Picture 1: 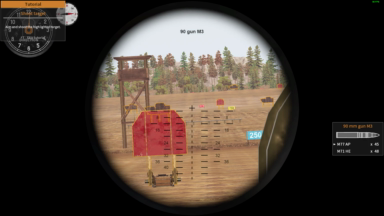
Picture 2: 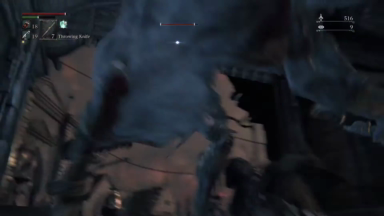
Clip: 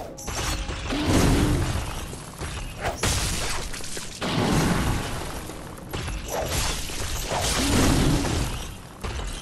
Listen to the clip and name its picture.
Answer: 2